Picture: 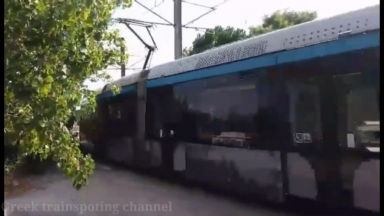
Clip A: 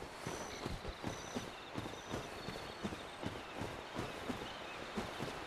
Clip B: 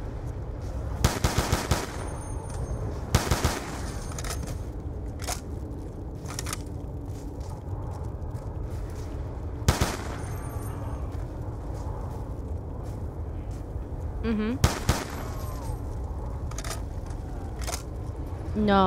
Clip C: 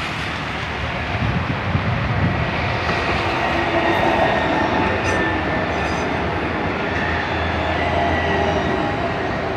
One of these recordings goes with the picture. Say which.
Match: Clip C